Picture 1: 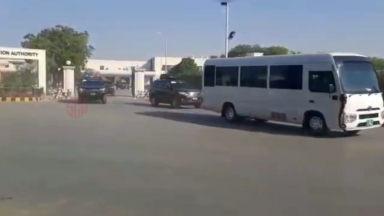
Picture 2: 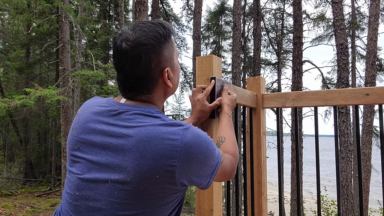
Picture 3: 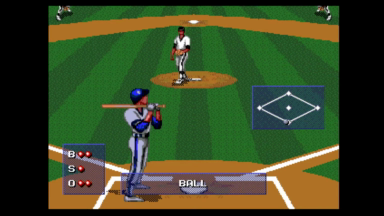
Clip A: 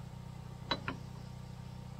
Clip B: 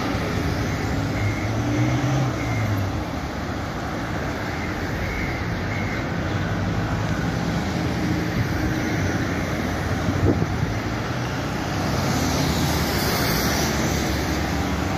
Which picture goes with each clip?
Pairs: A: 2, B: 1